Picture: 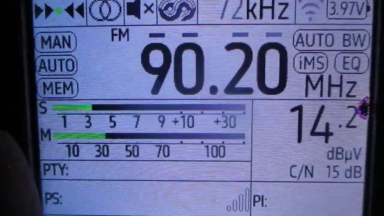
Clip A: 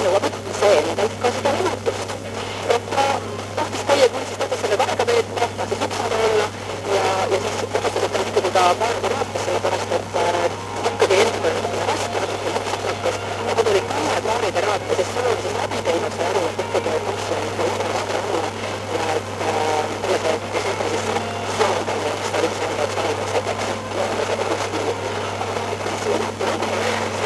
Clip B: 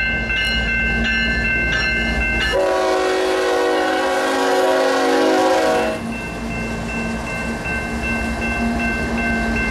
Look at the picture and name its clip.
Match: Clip A